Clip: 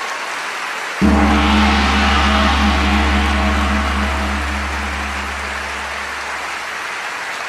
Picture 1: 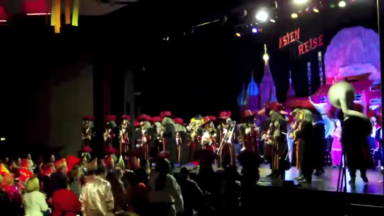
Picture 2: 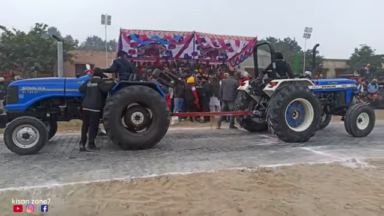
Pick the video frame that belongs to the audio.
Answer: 1